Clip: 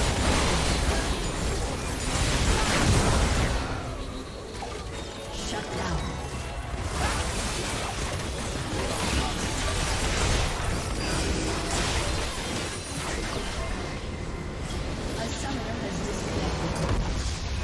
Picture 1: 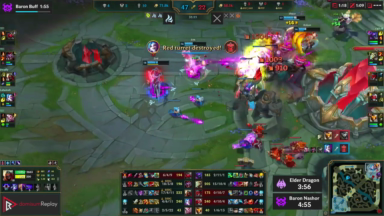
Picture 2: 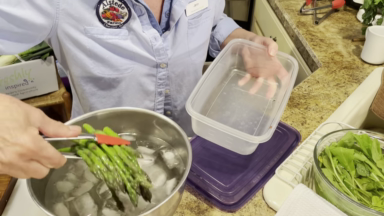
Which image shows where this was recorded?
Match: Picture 1